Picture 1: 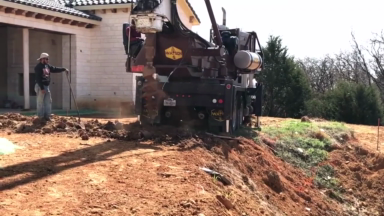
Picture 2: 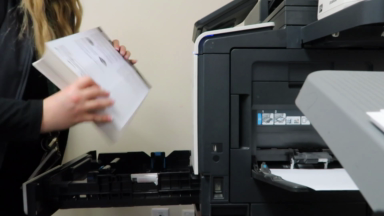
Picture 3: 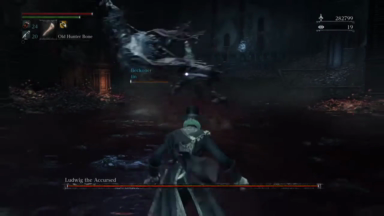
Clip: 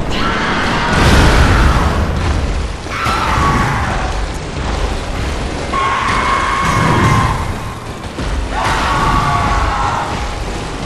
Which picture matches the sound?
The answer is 3